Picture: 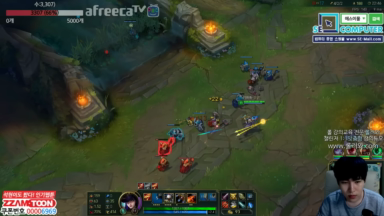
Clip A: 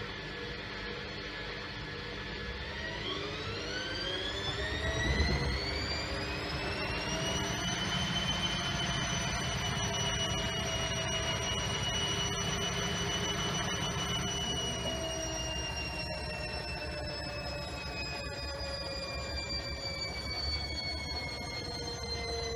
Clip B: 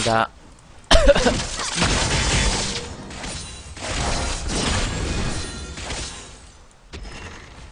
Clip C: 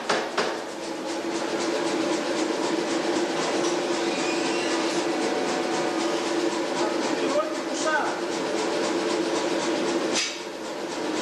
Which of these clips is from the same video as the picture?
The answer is B